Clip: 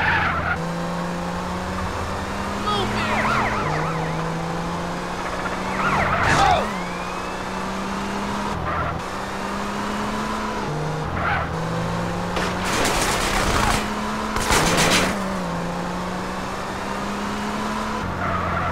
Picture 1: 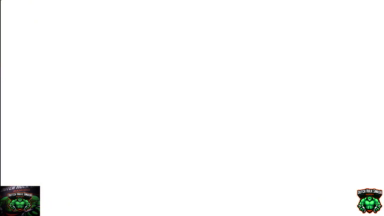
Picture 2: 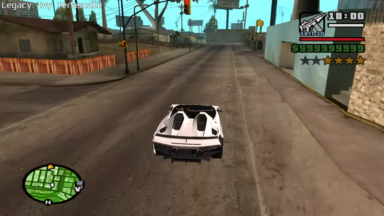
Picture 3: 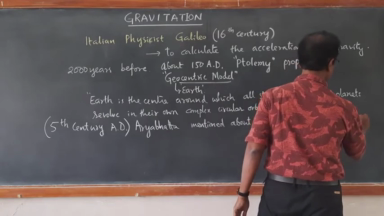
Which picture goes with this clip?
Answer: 2